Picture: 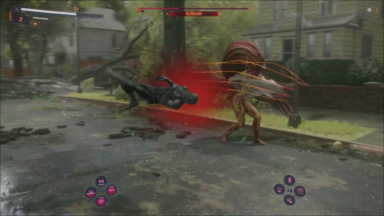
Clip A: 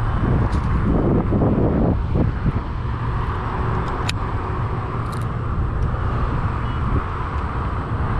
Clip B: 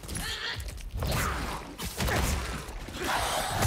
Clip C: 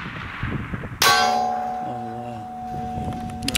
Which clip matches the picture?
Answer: B